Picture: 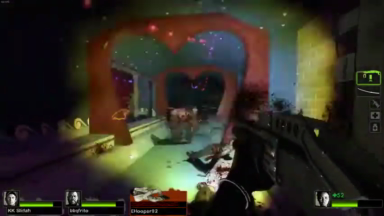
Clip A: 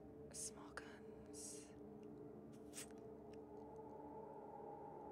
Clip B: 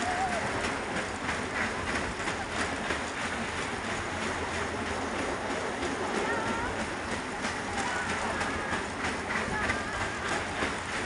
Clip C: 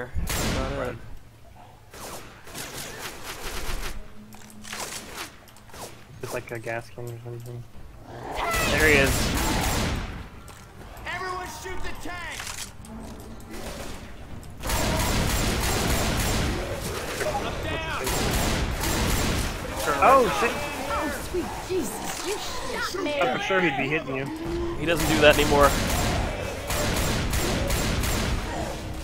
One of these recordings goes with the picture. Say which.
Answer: C